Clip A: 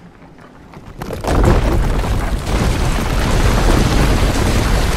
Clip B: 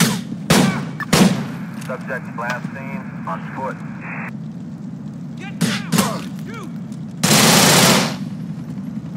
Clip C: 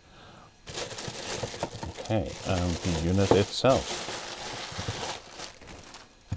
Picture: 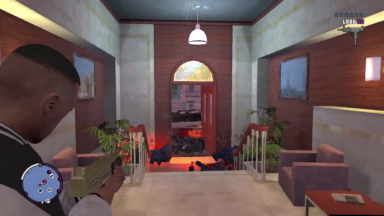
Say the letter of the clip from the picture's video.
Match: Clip B